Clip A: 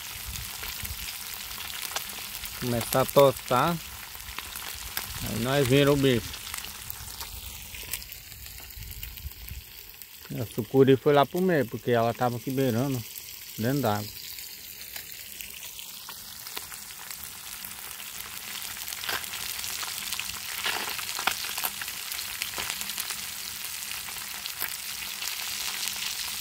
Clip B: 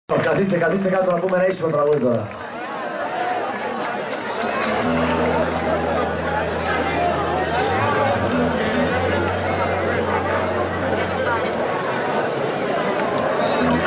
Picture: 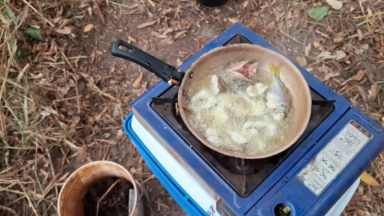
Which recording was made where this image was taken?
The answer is A